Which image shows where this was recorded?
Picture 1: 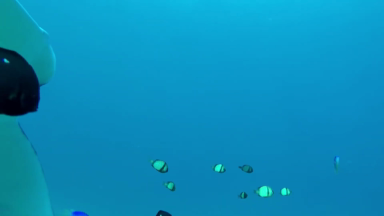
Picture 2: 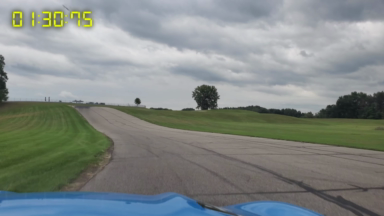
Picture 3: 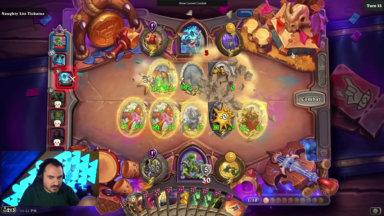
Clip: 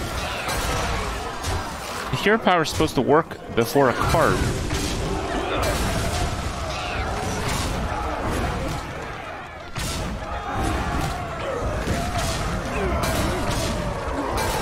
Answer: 3